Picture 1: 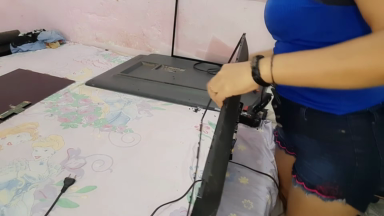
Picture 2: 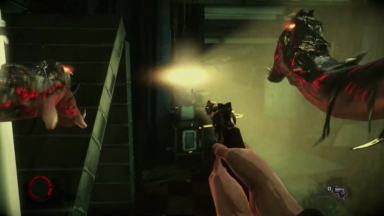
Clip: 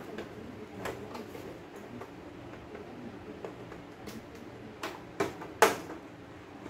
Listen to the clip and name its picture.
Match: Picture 1